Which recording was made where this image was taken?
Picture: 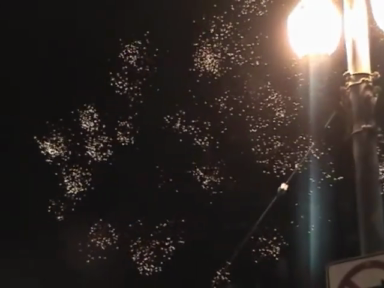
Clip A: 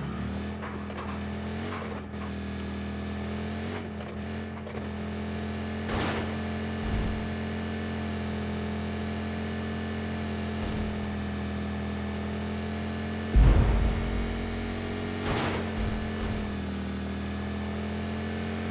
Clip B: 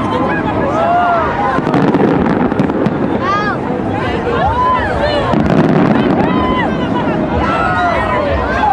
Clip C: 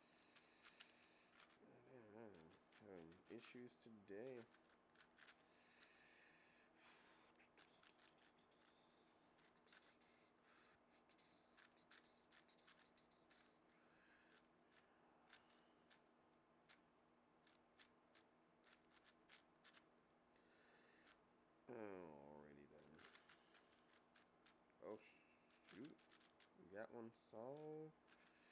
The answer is B